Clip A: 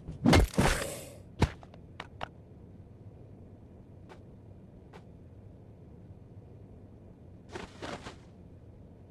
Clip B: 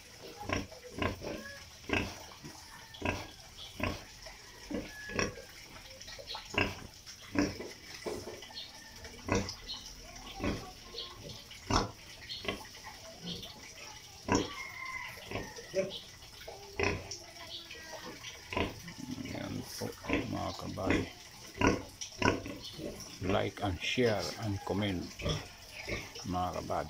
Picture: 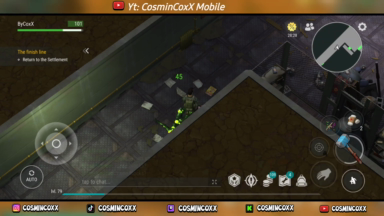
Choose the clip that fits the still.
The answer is A